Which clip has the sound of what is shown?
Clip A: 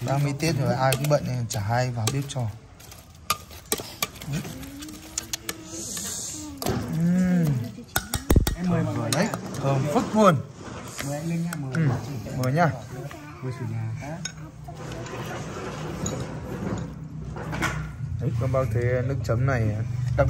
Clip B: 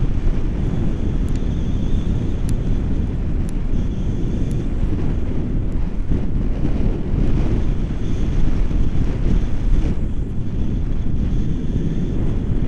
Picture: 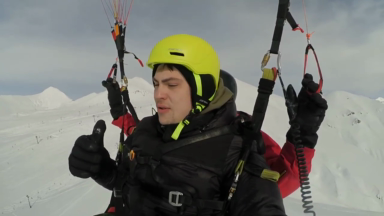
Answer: B